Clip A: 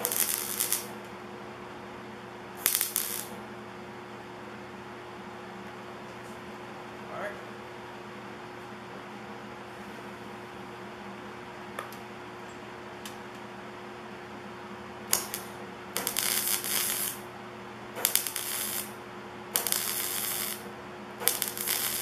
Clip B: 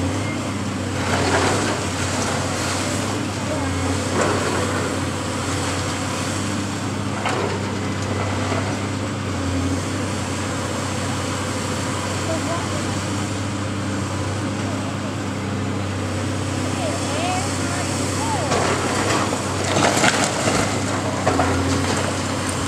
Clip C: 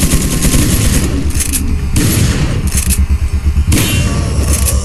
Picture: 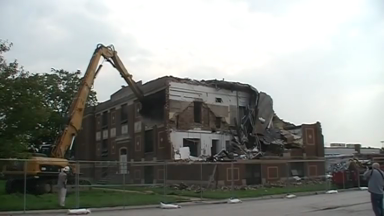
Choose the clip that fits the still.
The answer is B